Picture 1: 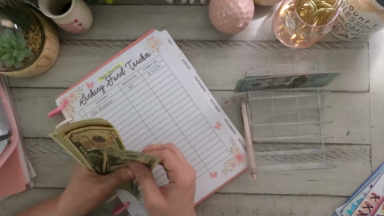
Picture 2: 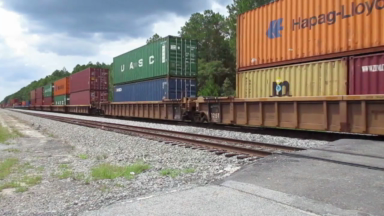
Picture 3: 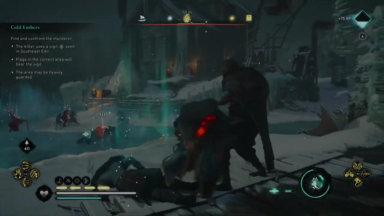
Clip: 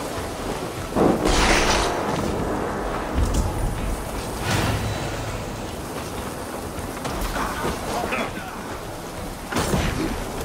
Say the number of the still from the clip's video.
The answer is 3